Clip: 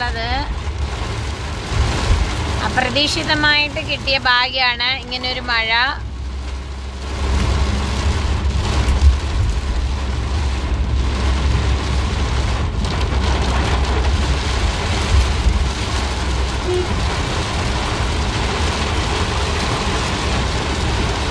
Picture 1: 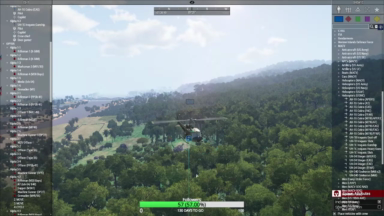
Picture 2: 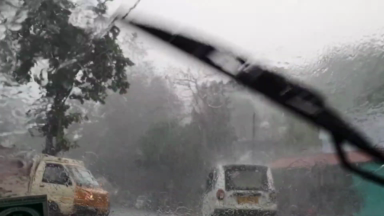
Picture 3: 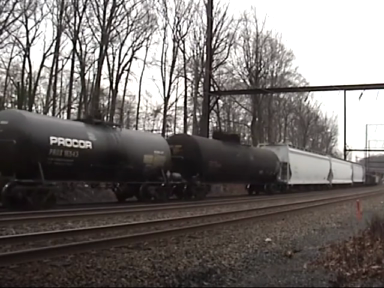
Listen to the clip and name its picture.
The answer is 2